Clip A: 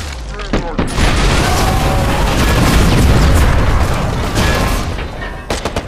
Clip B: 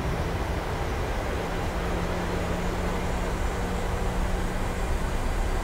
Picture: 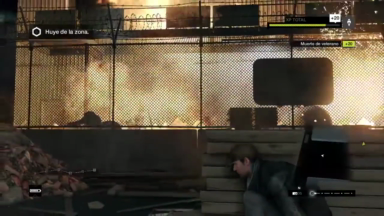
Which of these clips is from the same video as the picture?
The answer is A